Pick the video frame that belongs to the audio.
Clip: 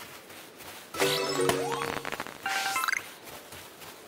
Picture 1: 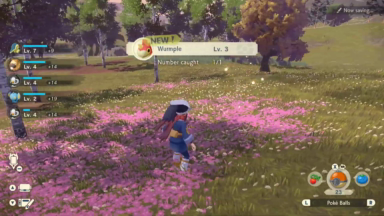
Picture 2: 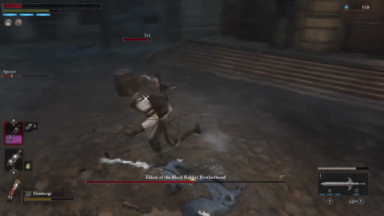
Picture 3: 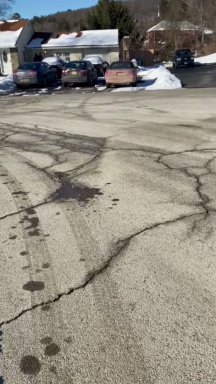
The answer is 1